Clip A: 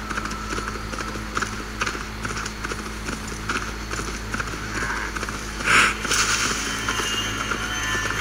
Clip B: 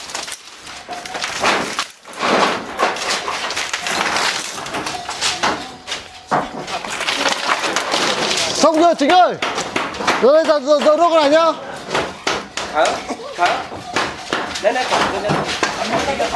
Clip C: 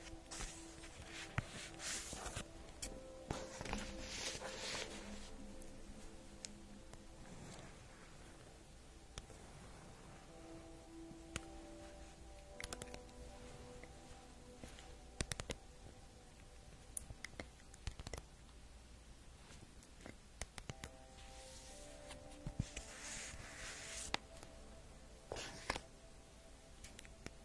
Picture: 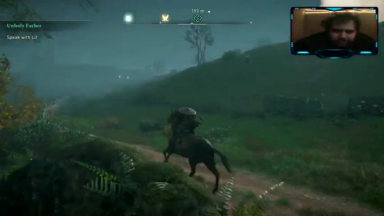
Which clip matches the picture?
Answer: A